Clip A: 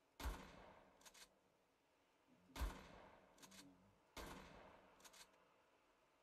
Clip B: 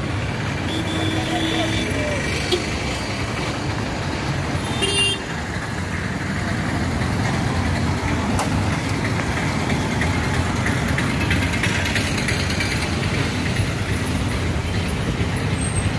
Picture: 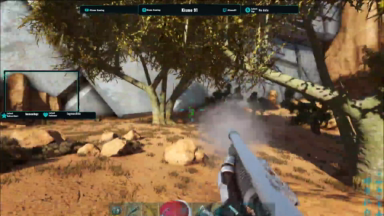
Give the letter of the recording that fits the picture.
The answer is A